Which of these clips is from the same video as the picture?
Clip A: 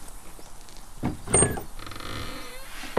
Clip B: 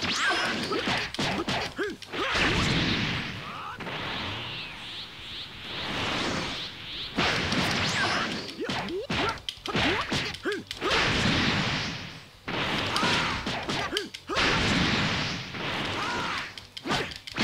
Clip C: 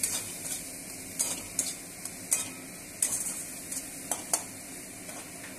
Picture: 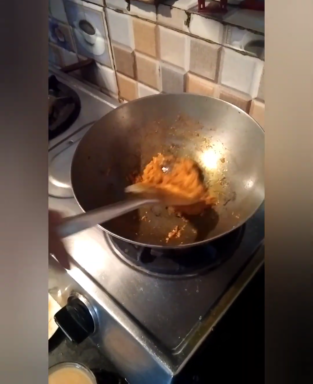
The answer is C